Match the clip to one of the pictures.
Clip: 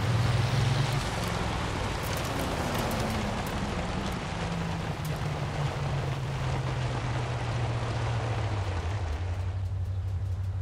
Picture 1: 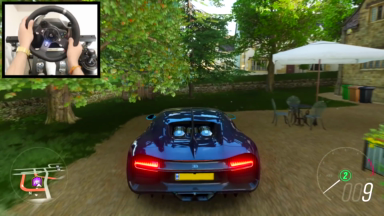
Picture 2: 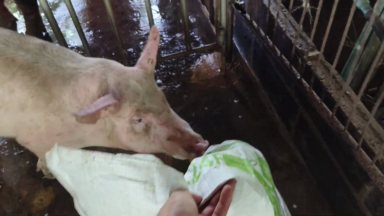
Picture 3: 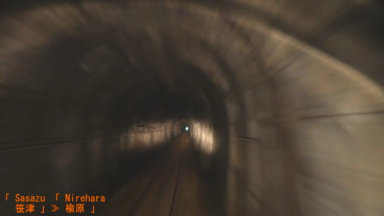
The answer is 1